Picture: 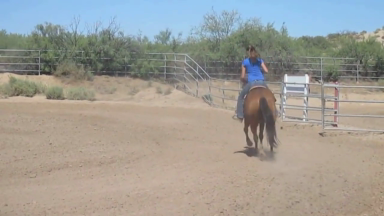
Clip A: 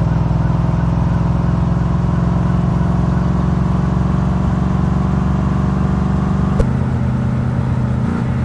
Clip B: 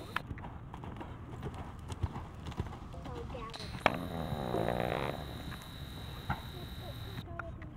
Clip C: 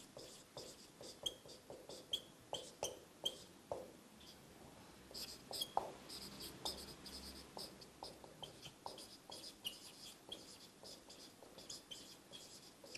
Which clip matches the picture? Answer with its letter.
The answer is B